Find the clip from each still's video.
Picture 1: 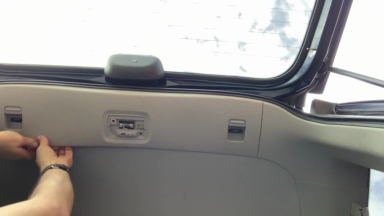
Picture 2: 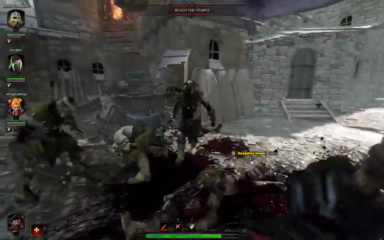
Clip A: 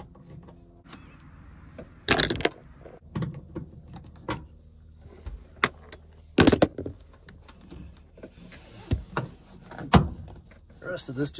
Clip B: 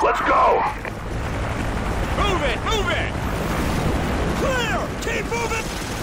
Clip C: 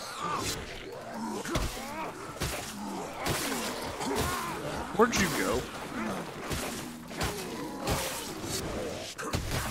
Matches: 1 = A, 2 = C